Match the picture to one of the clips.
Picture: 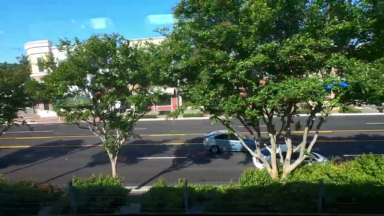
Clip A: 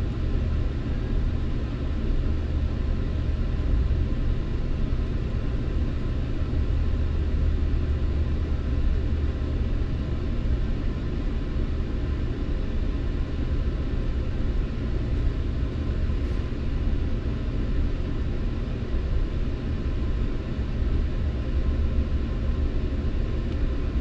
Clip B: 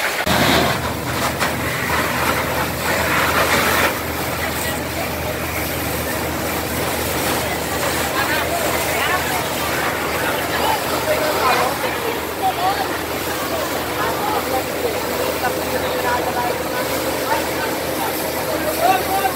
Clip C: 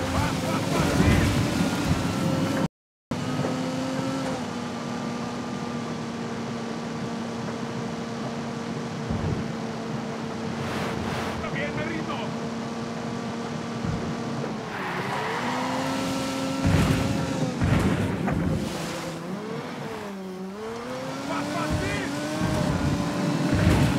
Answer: A